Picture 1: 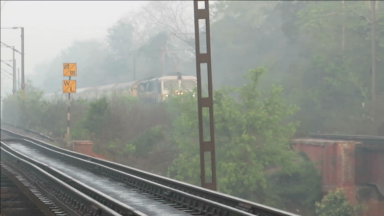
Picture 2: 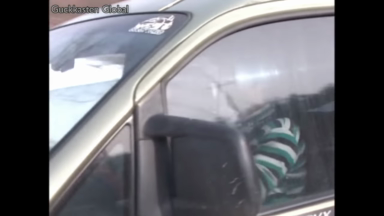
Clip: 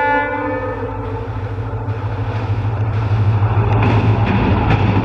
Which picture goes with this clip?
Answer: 1